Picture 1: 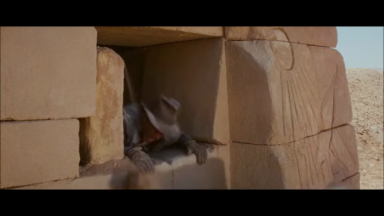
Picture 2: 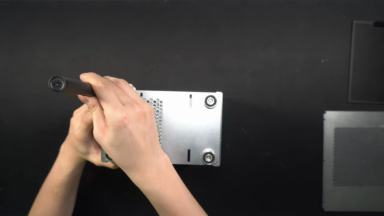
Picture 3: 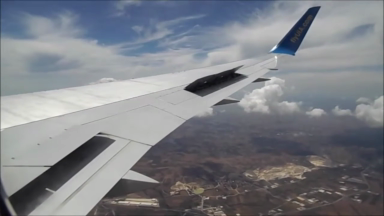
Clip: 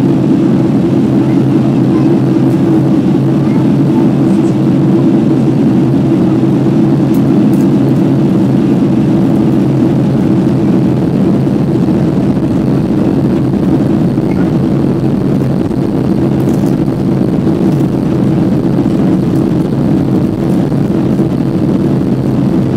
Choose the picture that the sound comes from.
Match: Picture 3